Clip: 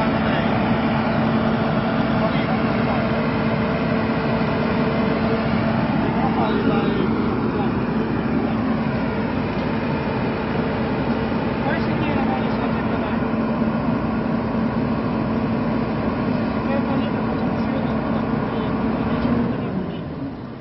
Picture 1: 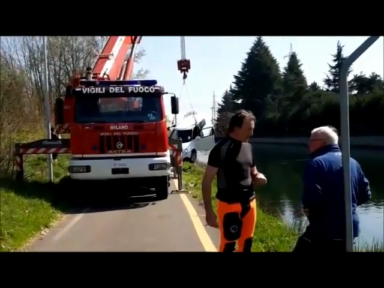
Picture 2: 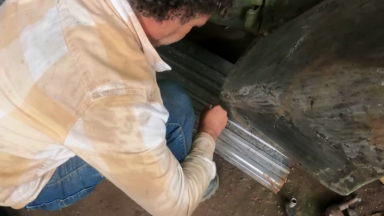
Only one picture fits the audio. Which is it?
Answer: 1